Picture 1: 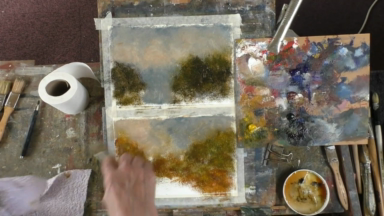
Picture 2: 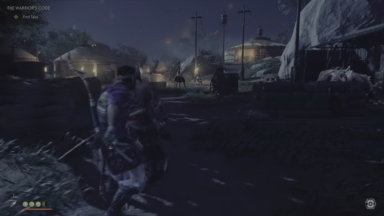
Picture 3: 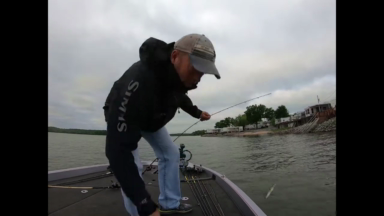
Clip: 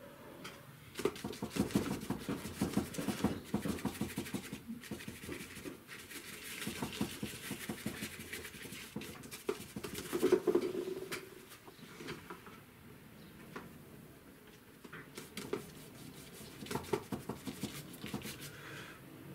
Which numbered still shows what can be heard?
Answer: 1